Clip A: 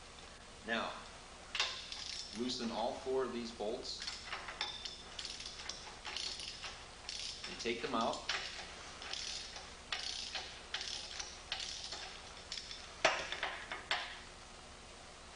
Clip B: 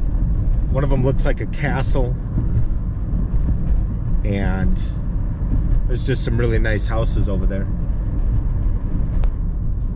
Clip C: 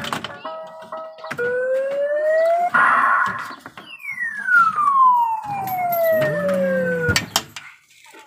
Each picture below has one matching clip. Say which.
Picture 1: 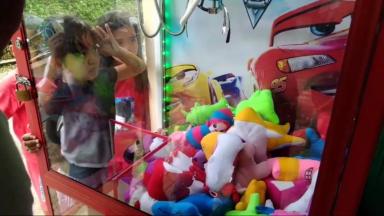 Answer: C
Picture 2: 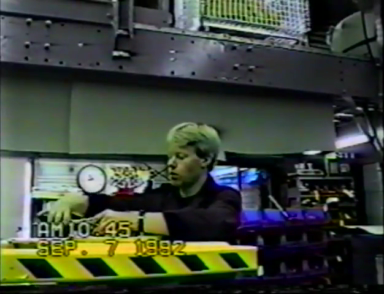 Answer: A